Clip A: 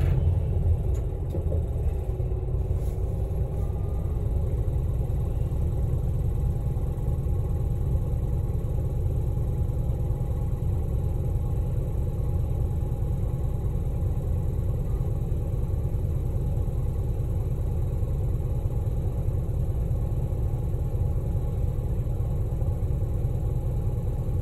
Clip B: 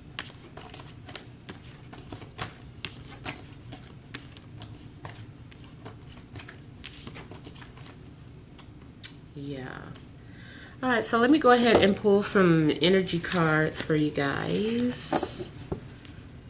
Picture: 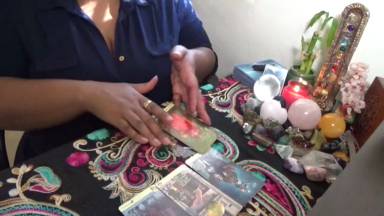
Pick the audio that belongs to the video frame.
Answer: B